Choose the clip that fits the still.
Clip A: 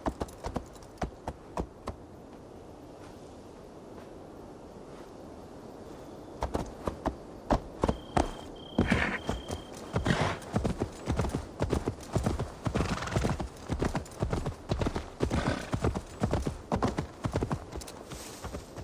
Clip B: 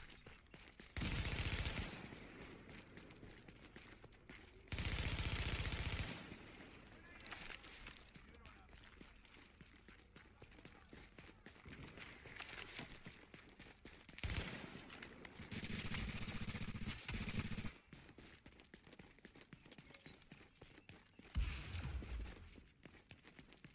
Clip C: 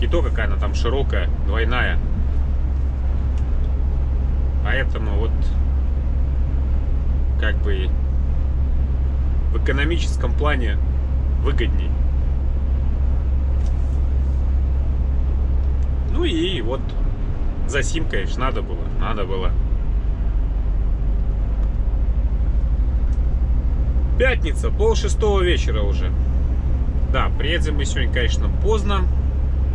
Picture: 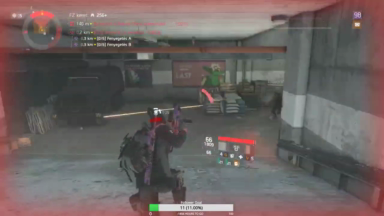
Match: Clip B